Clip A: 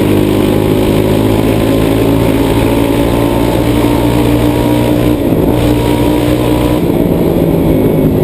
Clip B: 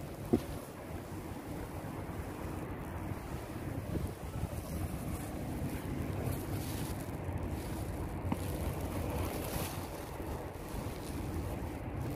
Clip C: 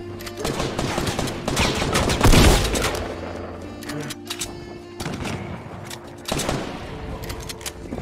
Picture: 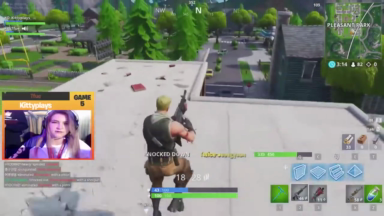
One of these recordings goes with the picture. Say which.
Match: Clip C